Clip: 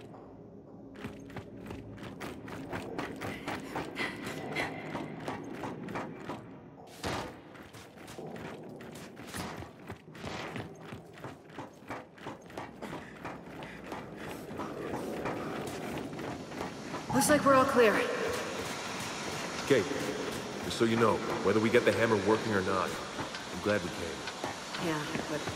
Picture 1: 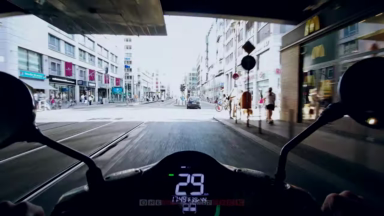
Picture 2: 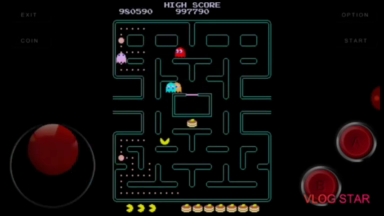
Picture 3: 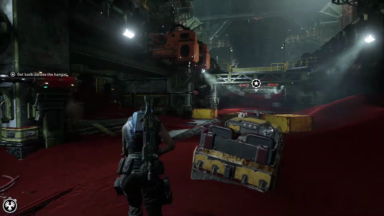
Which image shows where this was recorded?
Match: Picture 3